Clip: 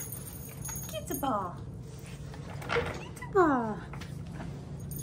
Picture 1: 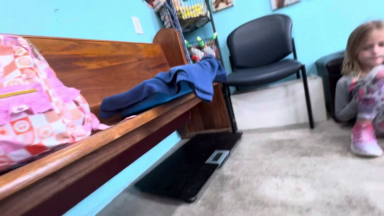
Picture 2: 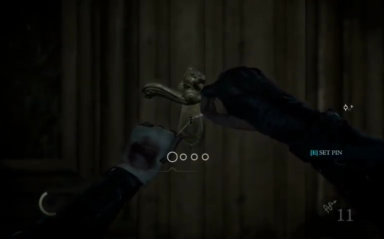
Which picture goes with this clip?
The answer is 1